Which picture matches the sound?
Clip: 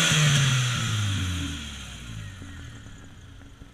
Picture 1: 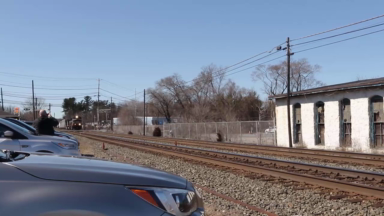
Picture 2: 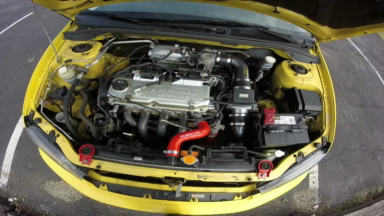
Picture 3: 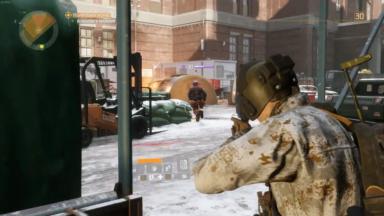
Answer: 2